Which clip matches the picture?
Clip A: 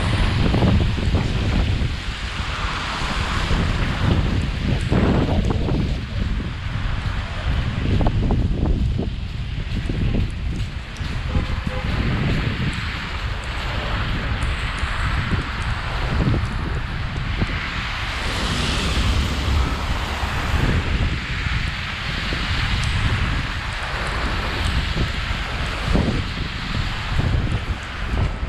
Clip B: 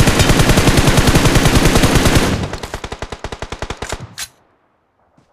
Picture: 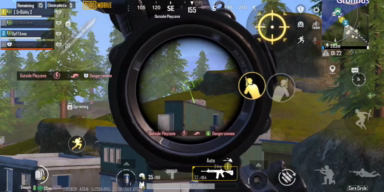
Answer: B